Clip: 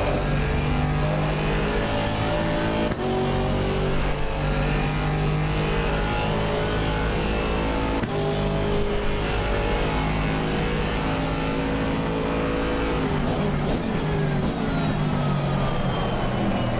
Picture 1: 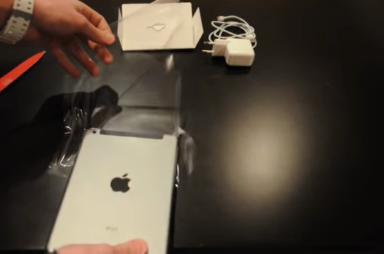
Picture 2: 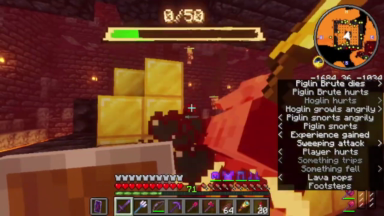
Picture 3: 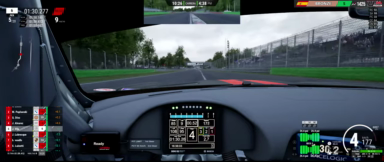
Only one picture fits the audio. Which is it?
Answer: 3